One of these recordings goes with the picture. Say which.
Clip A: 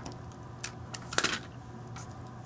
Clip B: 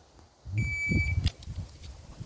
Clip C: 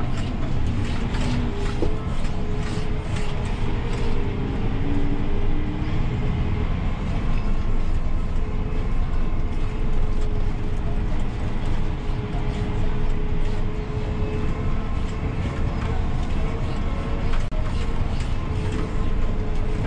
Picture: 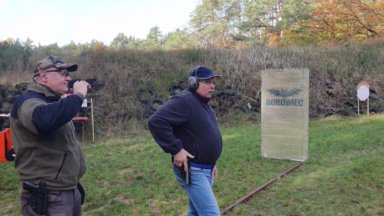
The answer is B